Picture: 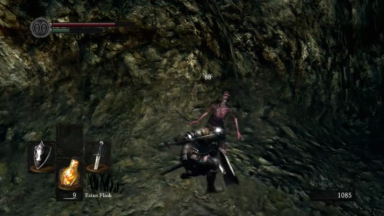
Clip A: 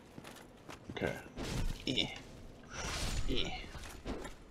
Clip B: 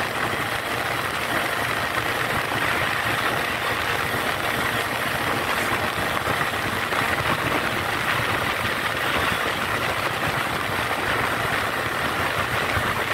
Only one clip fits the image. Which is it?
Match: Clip A